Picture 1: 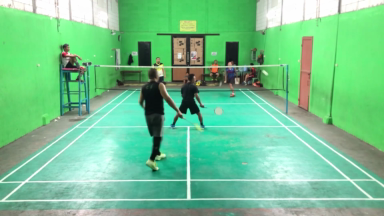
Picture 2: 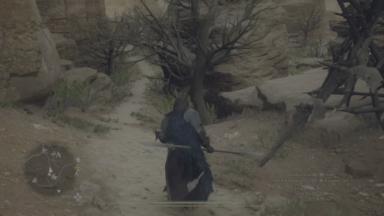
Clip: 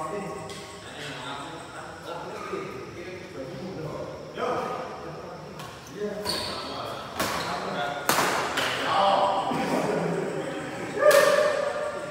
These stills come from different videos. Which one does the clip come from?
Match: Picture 1